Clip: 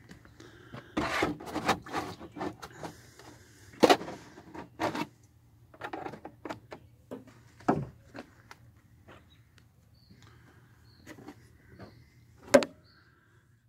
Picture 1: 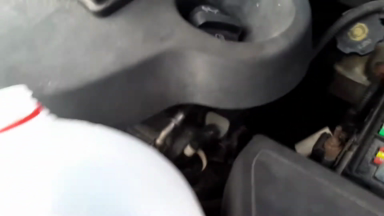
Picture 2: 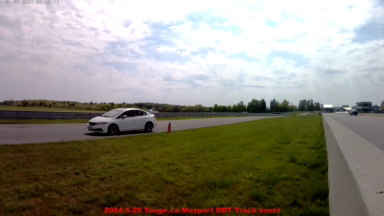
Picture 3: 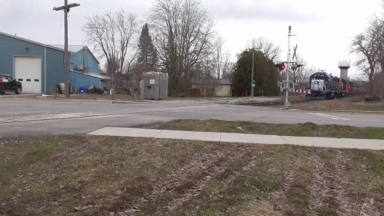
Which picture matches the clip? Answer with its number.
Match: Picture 1